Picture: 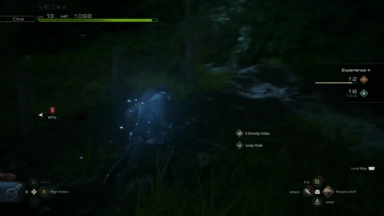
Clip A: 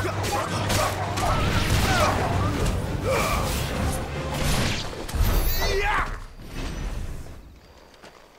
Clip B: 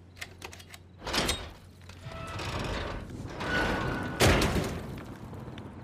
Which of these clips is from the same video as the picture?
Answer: A